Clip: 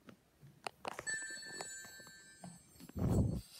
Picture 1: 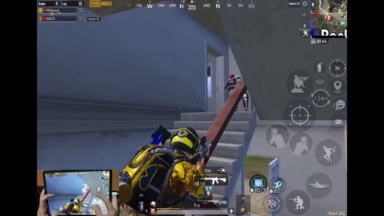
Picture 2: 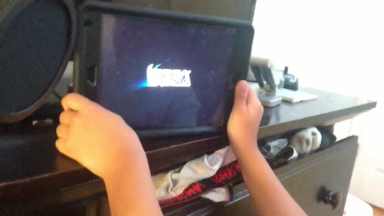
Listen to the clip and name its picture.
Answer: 2